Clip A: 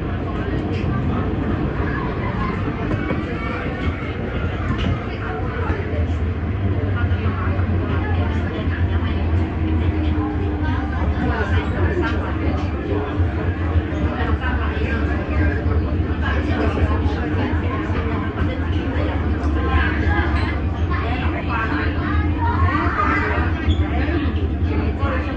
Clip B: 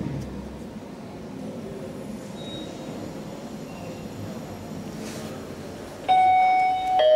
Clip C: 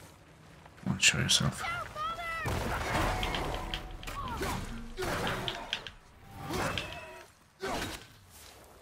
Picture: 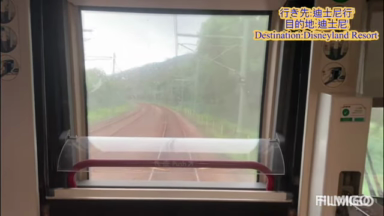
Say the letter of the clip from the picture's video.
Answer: A